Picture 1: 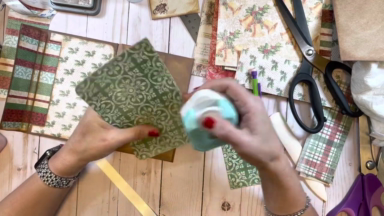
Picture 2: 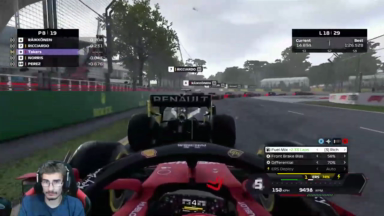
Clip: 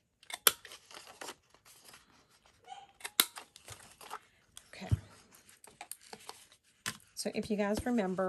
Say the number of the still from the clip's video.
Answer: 1